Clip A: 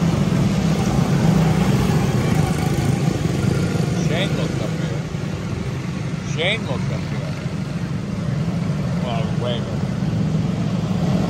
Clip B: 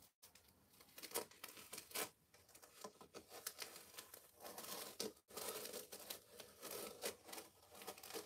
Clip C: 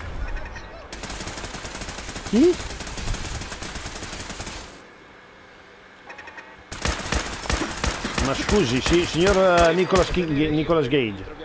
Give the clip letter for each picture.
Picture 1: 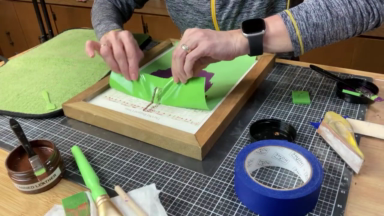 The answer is B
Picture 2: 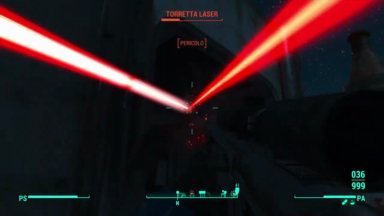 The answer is C